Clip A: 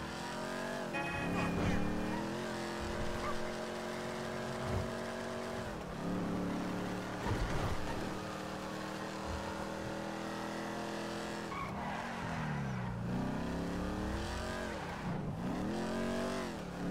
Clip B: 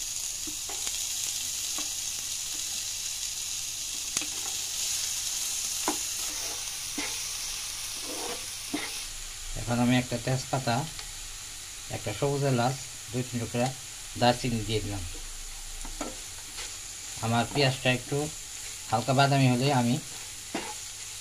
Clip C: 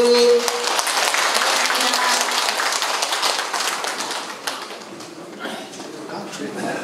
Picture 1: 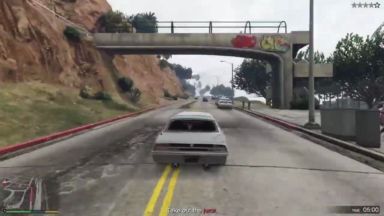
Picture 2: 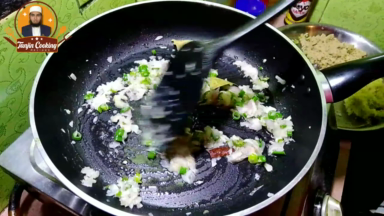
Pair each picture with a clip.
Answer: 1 A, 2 B